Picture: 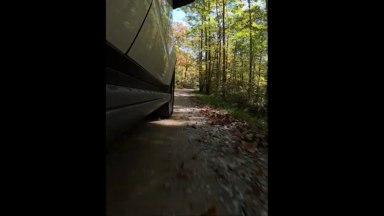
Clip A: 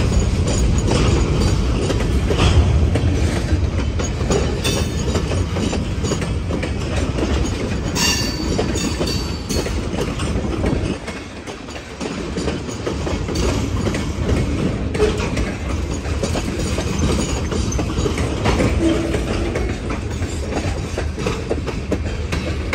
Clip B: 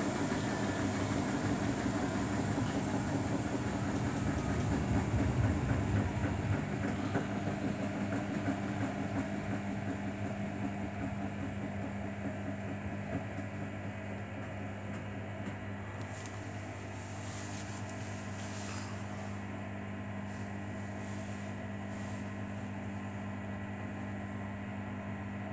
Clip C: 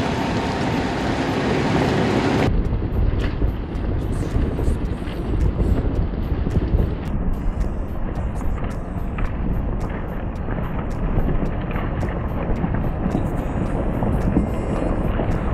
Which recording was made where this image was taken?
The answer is C